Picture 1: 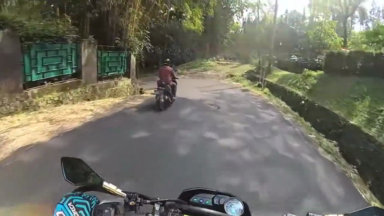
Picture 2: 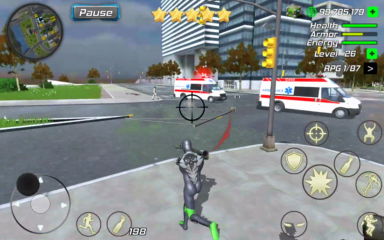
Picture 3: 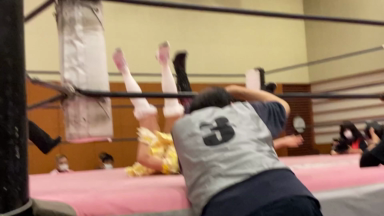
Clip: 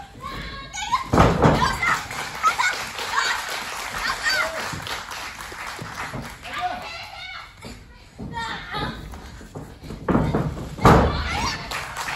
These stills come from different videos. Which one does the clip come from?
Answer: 3